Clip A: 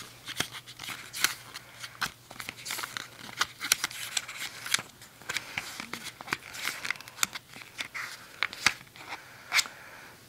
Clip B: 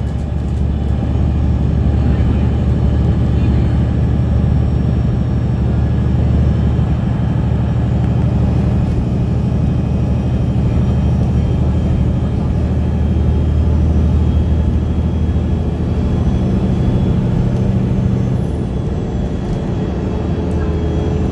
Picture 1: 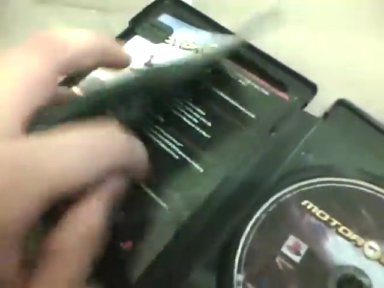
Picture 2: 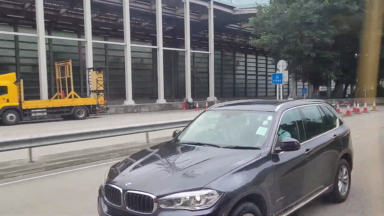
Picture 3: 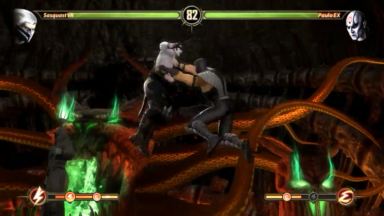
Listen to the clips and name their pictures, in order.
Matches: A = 1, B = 2